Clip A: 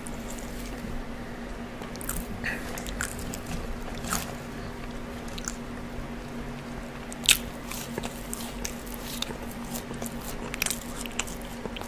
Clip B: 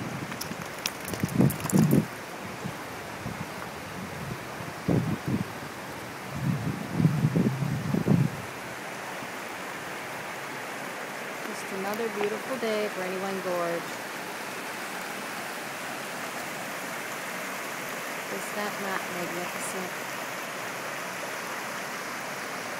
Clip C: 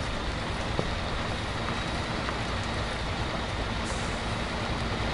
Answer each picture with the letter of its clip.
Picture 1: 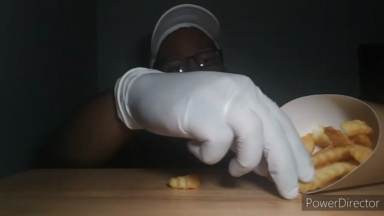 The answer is A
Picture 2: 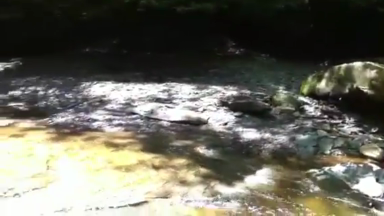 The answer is B